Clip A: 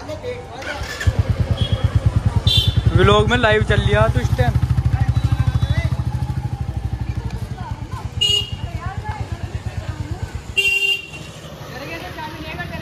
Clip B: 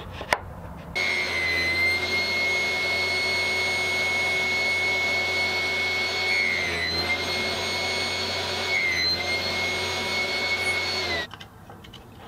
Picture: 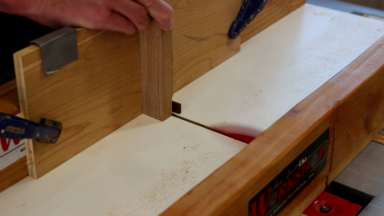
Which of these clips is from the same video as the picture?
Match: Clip B